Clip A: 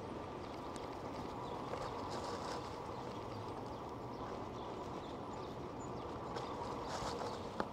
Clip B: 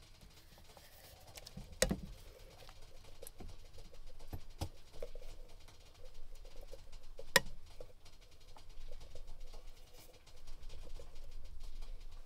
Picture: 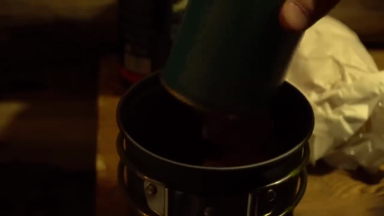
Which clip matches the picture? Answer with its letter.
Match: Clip B